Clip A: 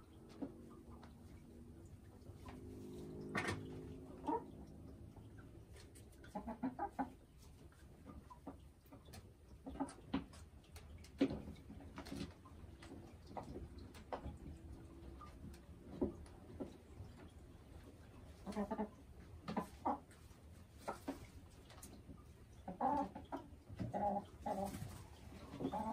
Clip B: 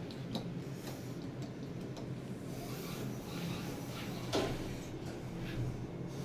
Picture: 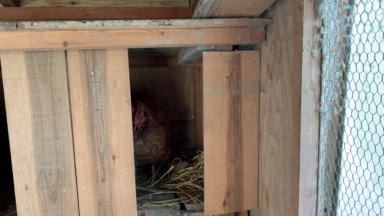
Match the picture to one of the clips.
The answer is A